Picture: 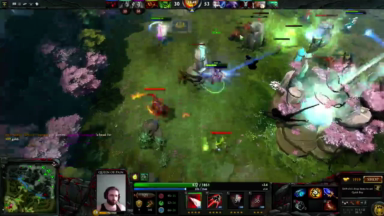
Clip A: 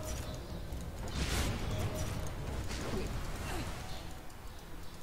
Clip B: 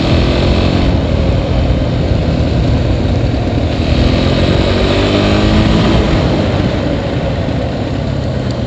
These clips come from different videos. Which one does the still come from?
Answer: A